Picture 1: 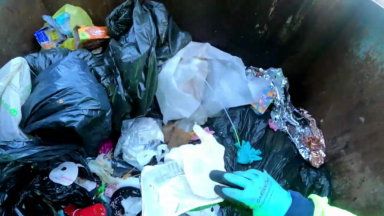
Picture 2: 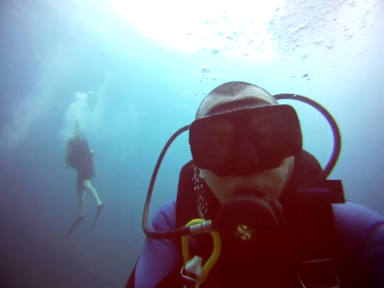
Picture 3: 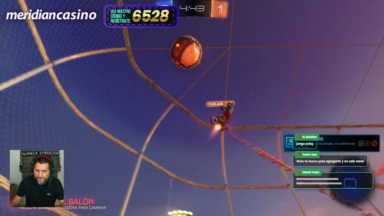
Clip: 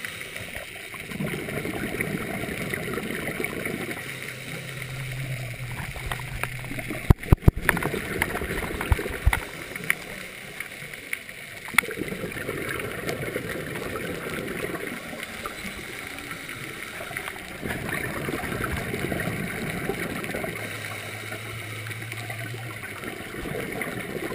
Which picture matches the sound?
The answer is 2